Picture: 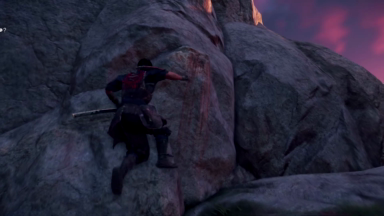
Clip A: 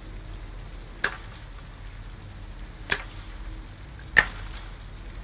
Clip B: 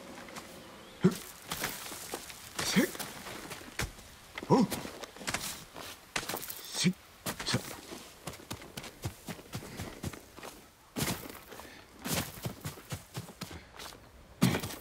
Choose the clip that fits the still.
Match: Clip B